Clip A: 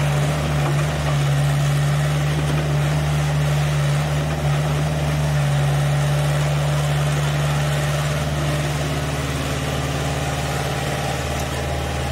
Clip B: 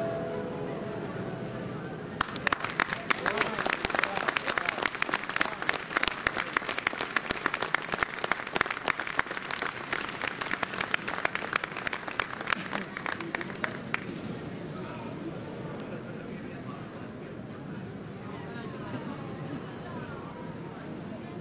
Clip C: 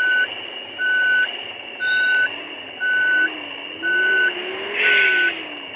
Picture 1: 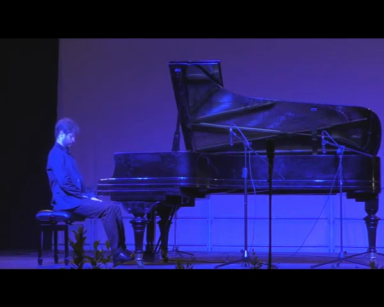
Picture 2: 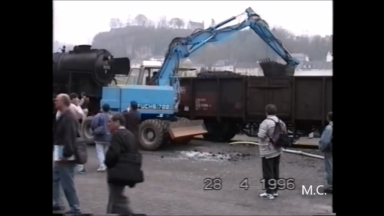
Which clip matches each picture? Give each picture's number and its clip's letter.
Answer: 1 B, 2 A